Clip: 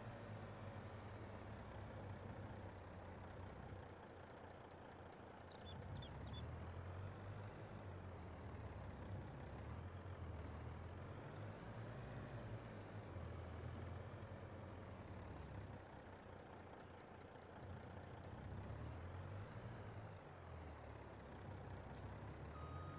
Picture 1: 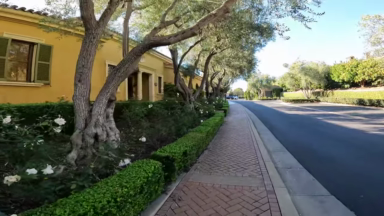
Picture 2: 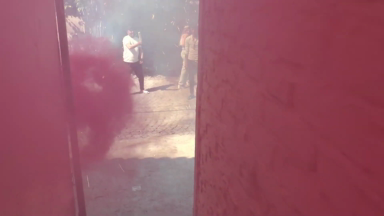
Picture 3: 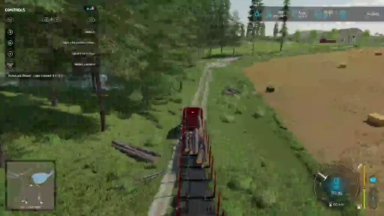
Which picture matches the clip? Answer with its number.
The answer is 3